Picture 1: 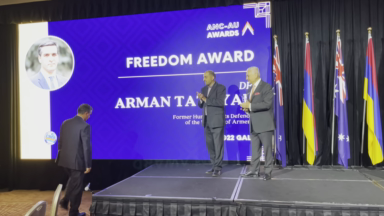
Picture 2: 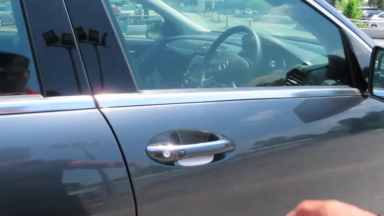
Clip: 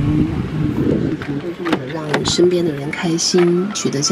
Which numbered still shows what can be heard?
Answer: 2